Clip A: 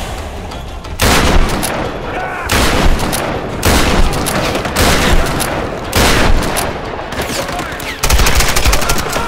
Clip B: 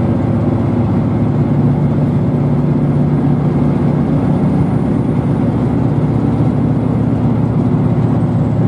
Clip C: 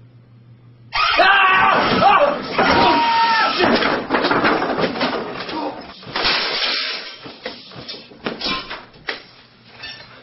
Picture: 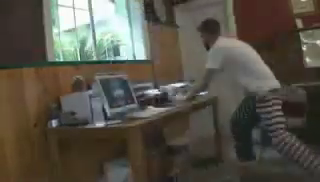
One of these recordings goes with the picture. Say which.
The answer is C